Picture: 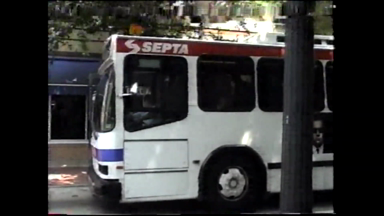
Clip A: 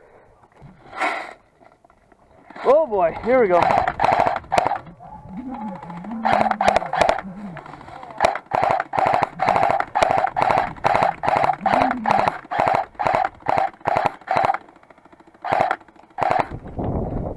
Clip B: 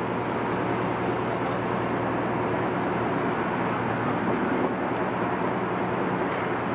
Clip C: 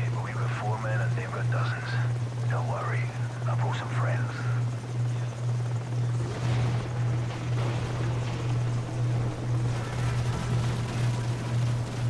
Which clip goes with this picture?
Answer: B